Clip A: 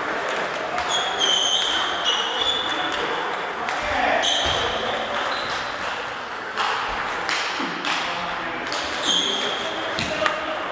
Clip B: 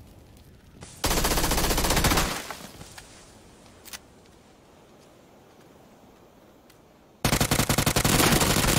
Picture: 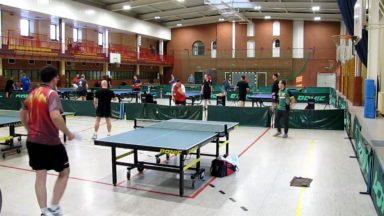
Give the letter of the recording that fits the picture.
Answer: A